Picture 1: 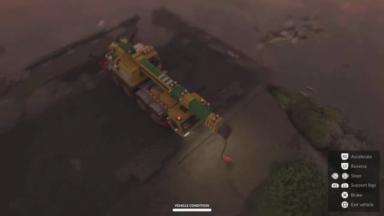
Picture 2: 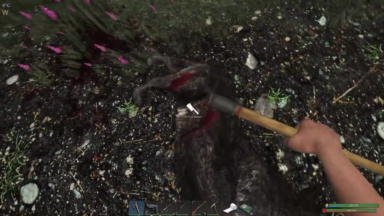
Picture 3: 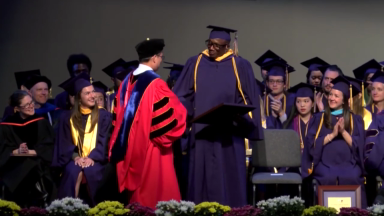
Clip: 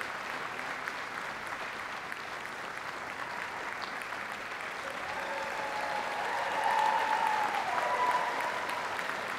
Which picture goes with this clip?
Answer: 3